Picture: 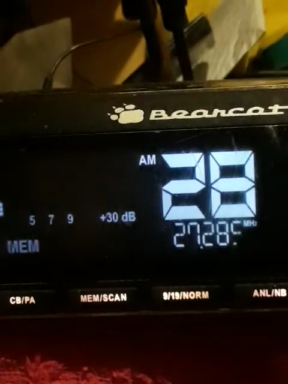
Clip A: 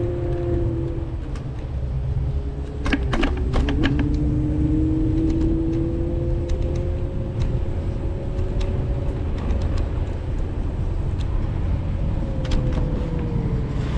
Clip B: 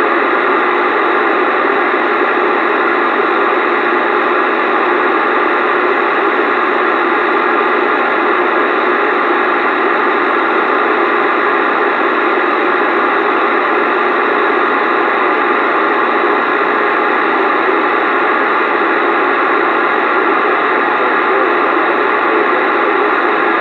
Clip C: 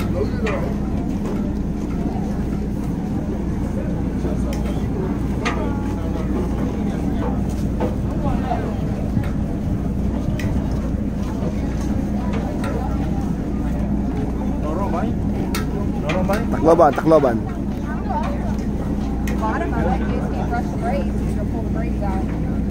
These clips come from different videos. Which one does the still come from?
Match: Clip B